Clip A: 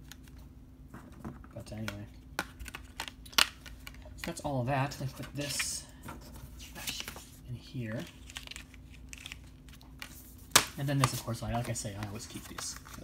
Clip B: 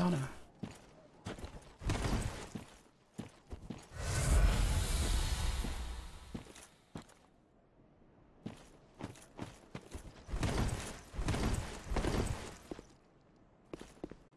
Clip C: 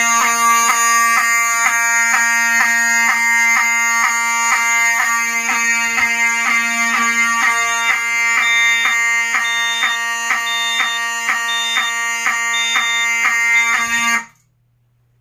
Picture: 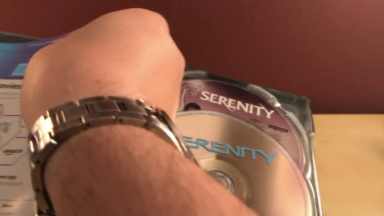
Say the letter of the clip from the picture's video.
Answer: A